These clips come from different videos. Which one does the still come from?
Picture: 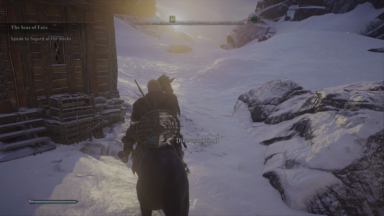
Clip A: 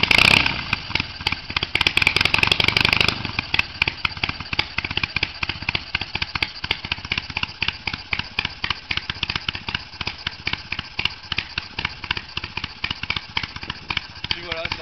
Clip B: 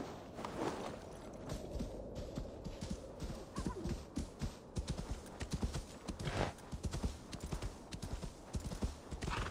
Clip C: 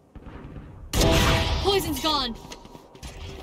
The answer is B